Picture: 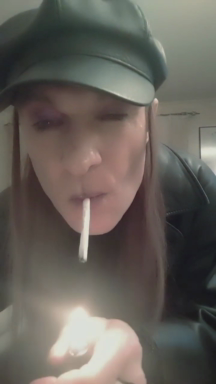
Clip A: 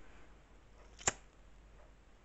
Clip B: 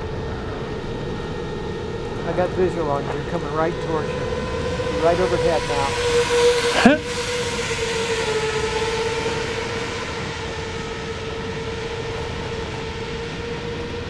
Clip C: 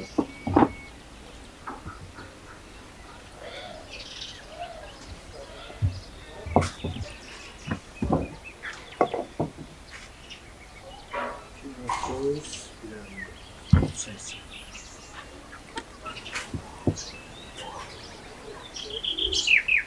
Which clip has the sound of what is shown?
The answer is A